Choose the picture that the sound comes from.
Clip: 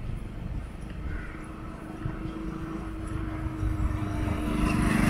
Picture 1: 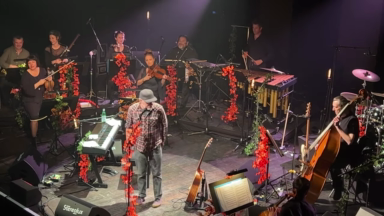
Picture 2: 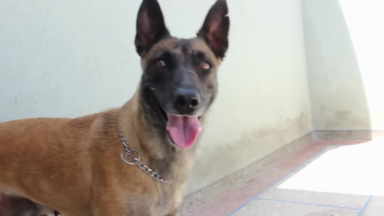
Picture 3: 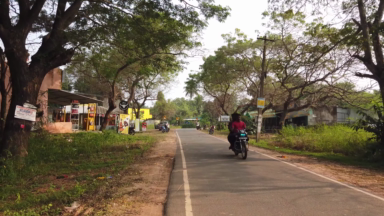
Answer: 3